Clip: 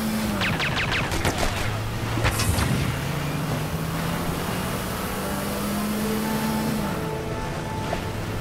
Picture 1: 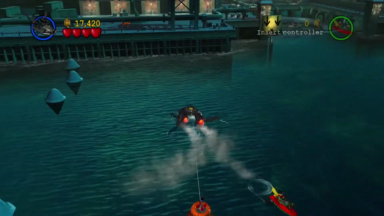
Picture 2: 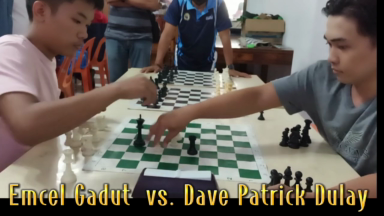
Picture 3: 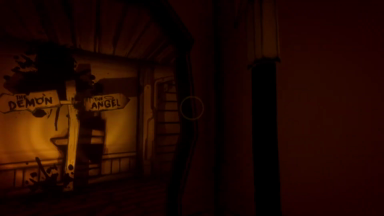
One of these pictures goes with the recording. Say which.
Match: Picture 1